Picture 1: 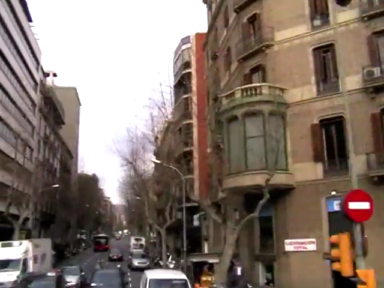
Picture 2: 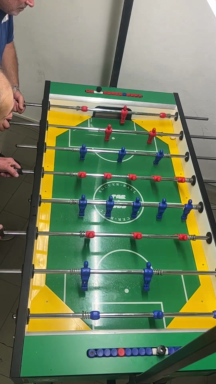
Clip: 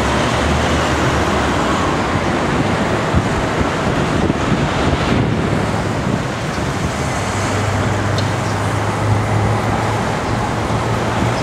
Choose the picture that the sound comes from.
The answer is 1